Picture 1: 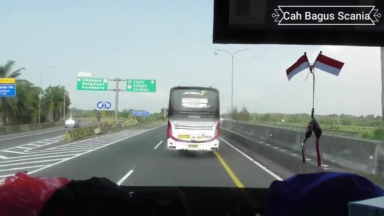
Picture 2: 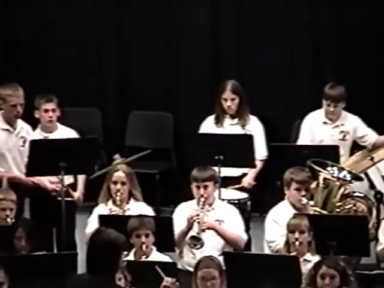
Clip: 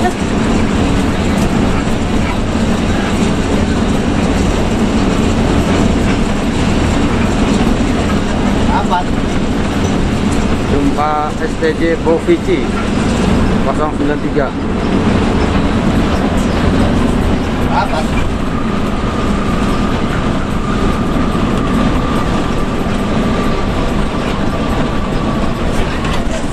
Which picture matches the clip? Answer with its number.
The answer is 1